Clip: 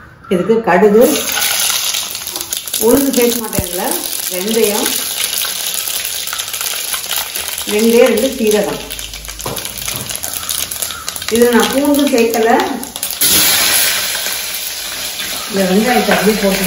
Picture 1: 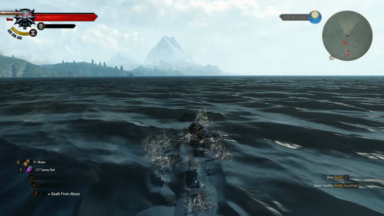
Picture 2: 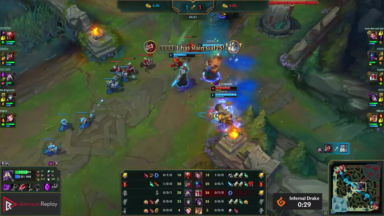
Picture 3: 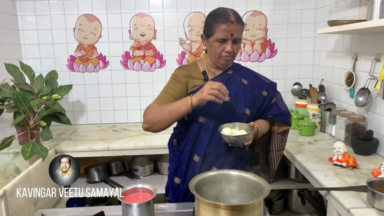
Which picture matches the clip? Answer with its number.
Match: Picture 3